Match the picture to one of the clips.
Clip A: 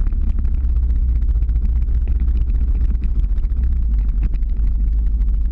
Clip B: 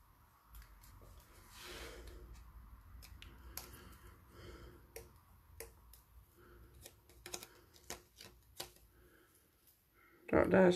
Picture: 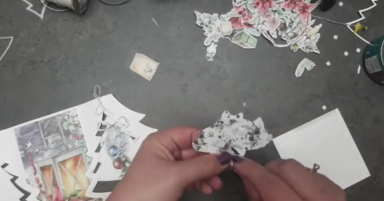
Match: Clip B